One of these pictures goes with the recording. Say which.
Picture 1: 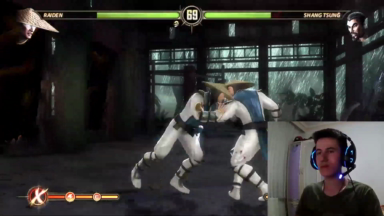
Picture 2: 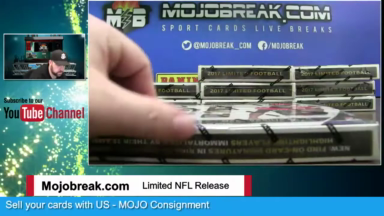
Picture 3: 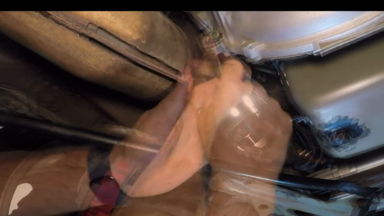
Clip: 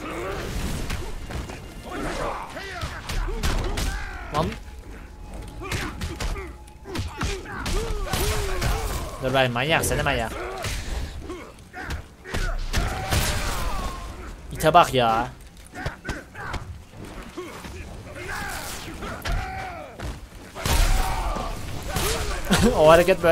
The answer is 1